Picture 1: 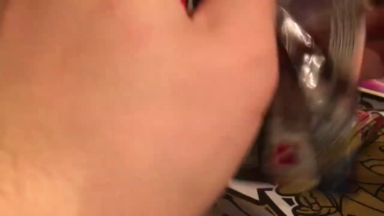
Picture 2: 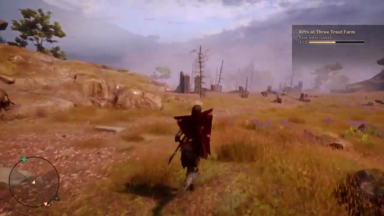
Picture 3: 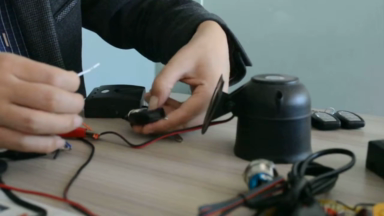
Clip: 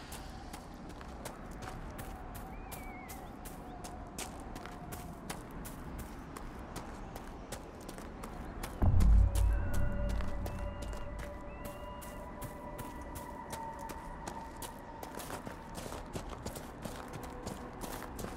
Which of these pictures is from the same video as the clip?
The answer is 2